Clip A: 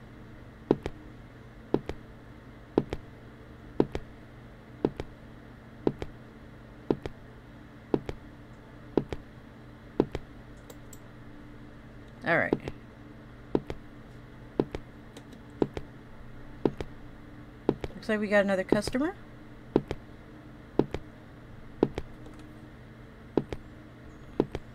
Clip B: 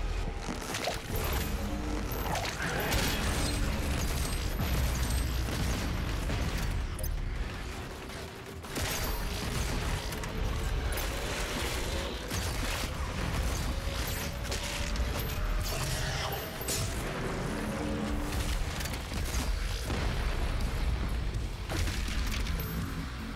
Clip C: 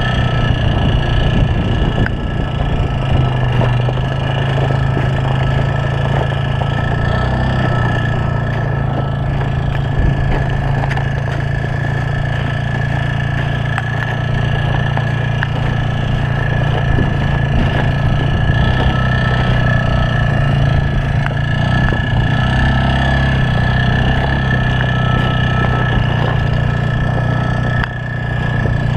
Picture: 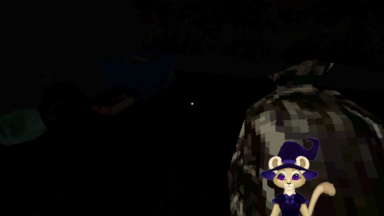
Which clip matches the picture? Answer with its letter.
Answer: A